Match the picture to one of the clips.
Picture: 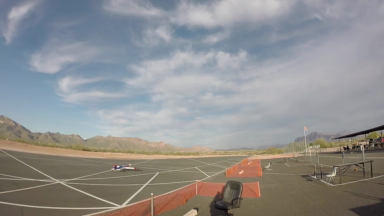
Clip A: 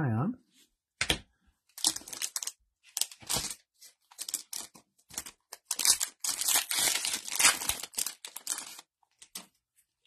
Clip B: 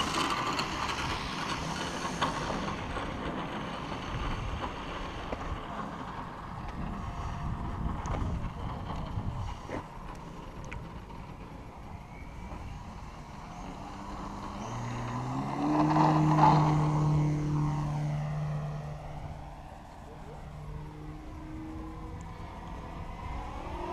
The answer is B